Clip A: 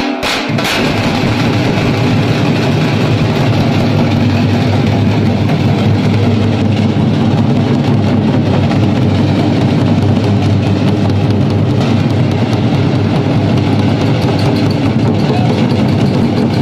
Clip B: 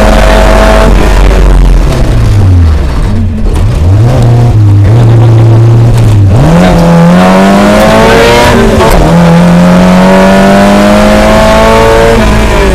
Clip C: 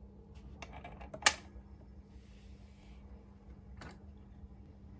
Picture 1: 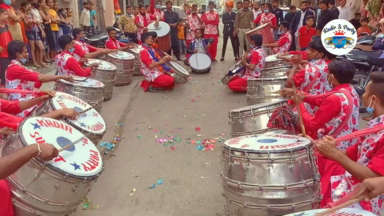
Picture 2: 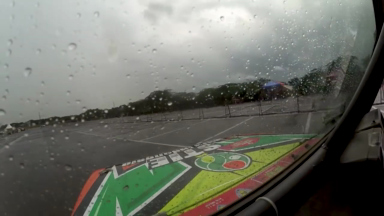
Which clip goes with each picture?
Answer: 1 A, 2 B